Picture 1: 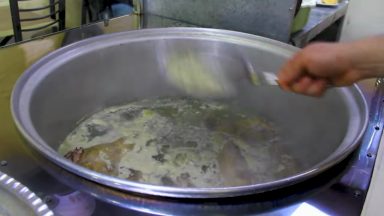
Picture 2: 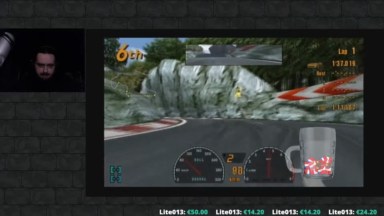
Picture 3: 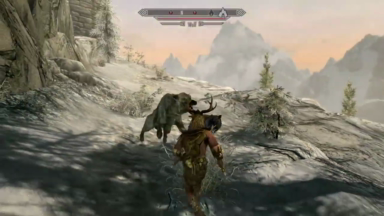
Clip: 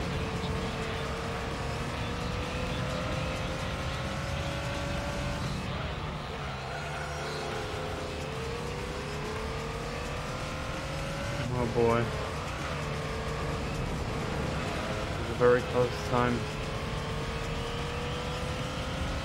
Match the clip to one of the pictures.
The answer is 2